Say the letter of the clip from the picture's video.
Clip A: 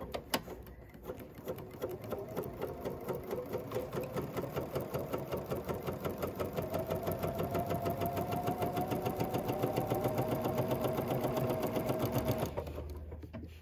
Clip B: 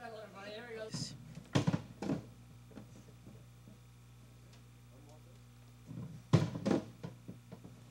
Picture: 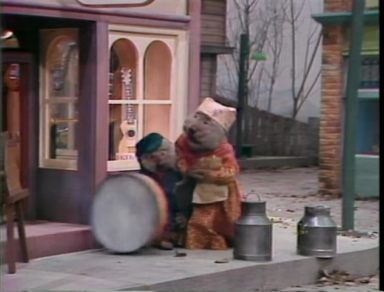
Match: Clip B